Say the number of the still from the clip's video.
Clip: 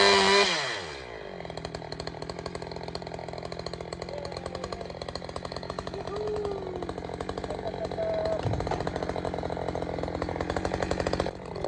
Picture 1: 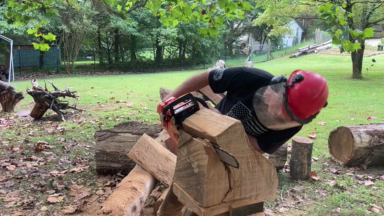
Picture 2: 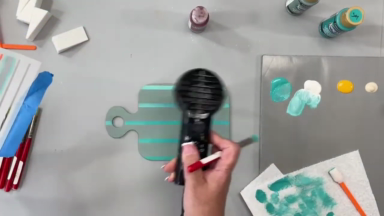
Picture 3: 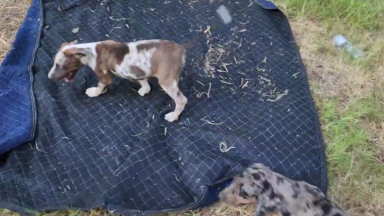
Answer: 1